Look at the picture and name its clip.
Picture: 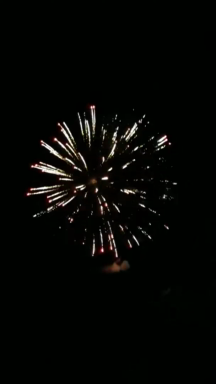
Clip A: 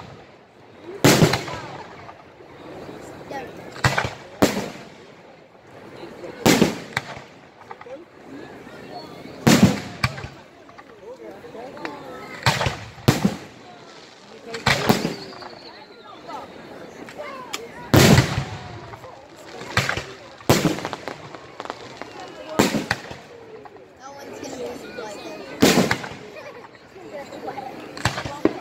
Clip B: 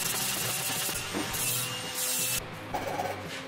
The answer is A